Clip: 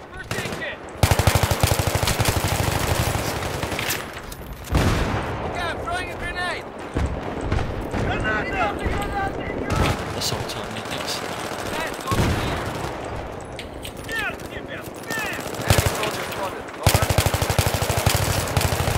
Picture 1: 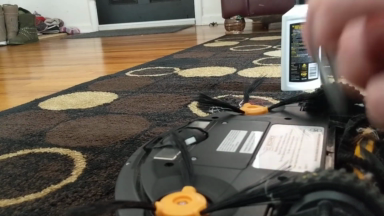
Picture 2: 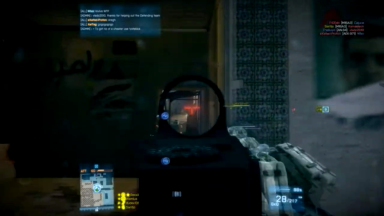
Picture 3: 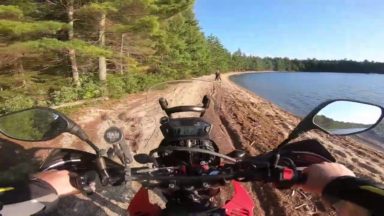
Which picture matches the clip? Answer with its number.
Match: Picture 2